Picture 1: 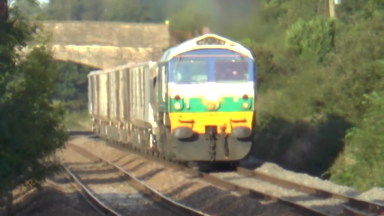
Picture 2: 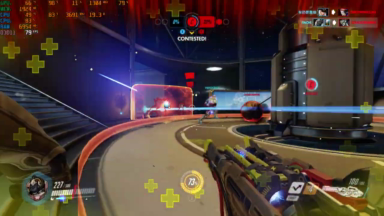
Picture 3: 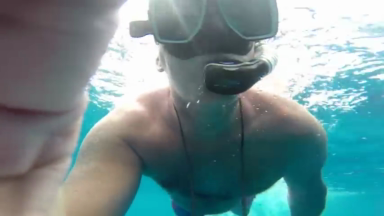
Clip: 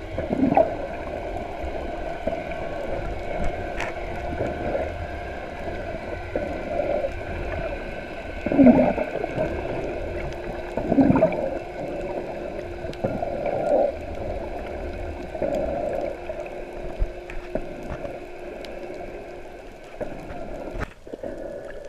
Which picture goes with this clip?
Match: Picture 3